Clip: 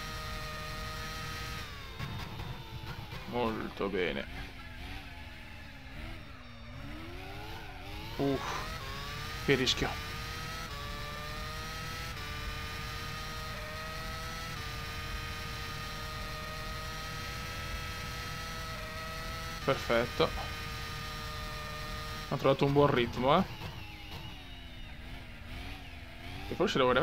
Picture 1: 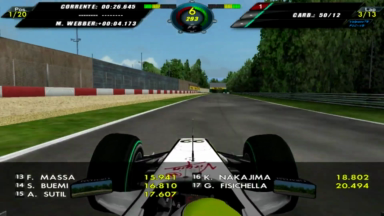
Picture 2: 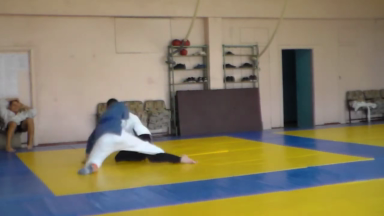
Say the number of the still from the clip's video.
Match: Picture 1